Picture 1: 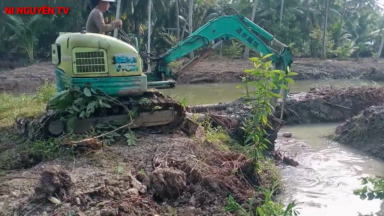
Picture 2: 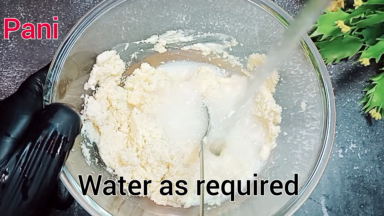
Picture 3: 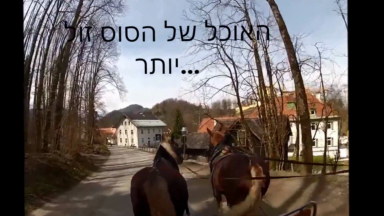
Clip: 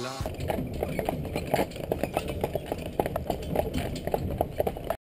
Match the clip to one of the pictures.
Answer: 3